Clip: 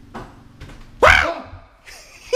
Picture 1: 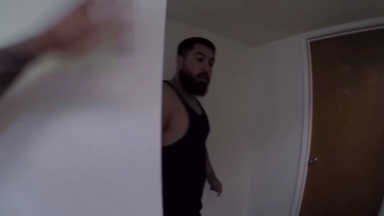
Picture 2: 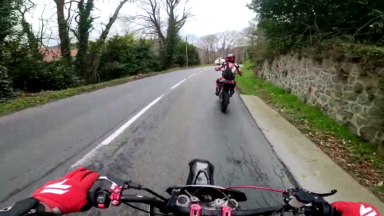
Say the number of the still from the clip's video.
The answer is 1